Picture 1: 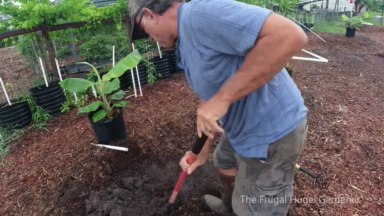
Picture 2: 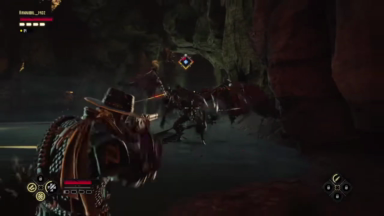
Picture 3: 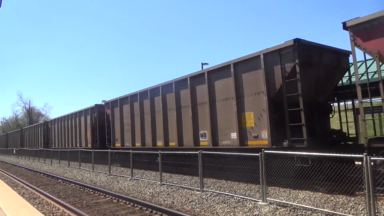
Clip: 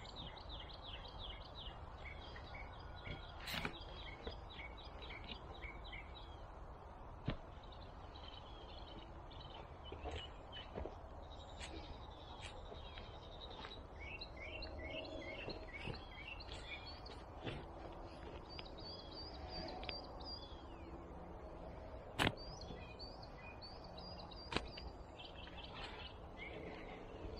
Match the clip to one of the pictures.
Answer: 1